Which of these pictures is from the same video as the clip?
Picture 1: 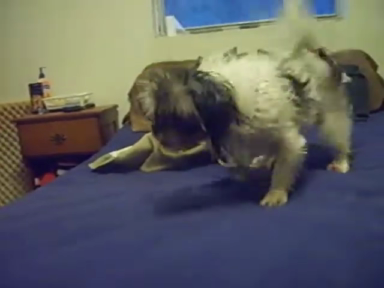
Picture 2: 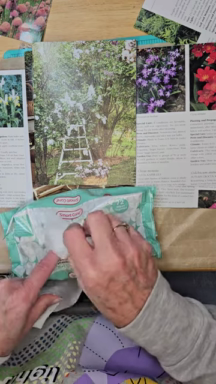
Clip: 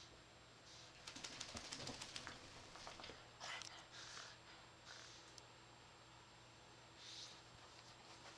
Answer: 1